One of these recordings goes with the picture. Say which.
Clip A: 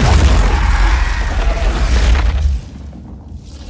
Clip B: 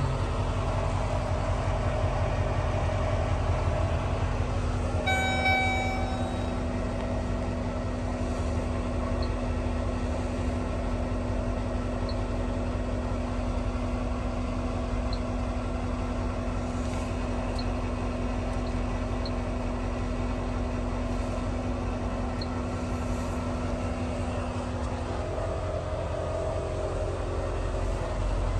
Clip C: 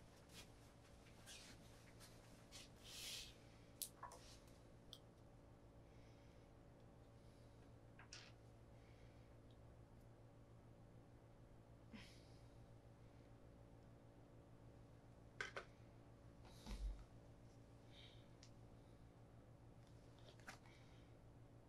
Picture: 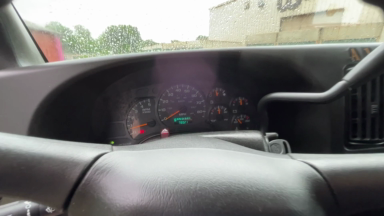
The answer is B